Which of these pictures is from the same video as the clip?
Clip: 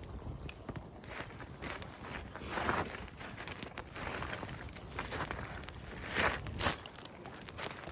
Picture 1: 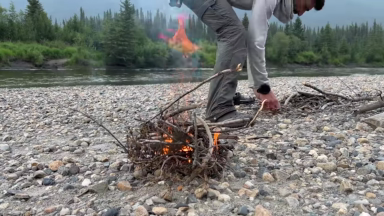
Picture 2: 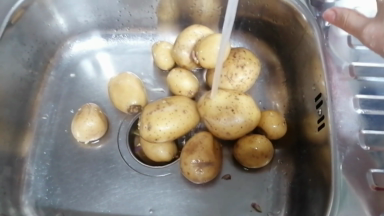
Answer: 1